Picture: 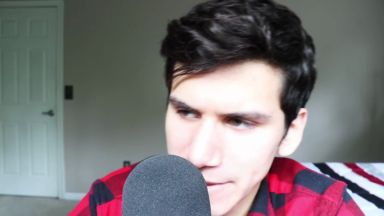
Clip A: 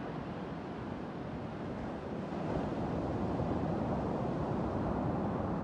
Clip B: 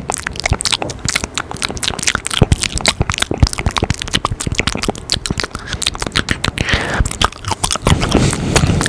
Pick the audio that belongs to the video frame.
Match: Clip B